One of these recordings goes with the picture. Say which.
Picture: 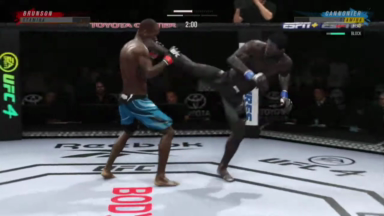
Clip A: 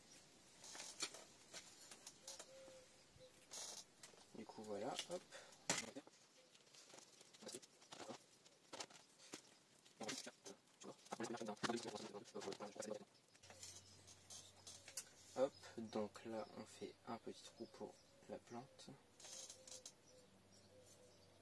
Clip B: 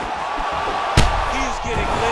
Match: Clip B